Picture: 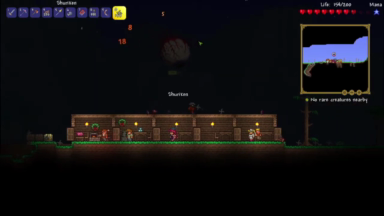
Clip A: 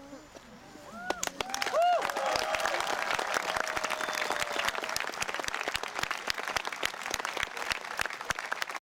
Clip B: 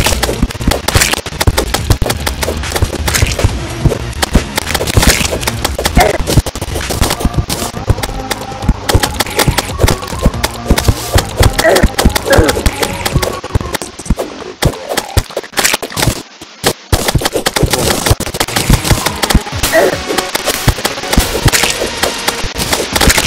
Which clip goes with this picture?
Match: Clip B